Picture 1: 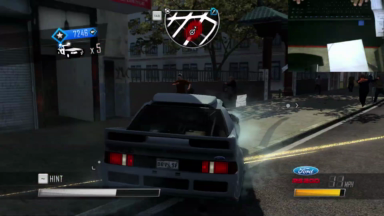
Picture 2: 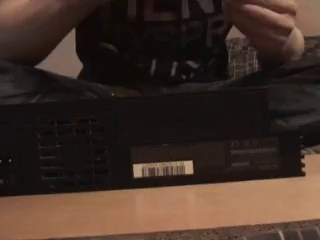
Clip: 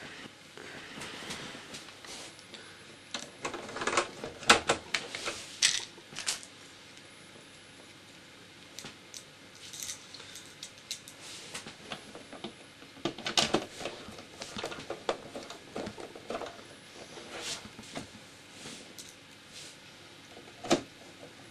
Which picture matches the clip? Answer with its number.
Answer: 2